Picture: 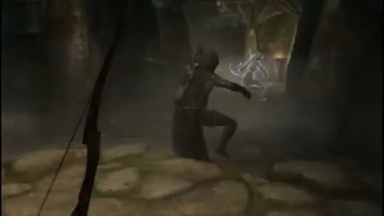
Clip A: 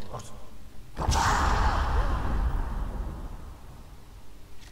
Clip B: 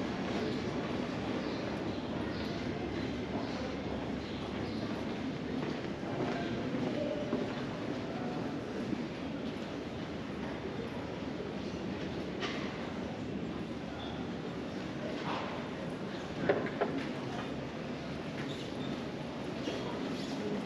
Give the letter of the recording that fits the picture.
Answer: A